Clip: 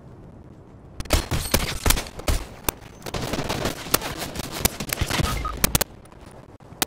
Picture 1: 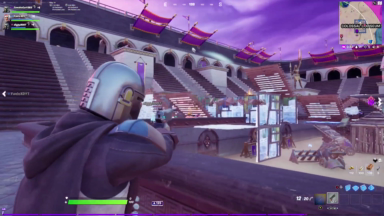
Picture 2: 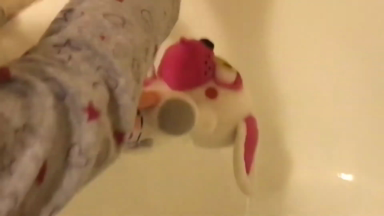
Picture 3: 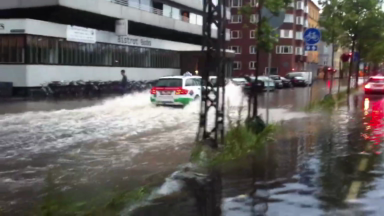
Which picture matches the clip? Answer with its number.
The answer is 1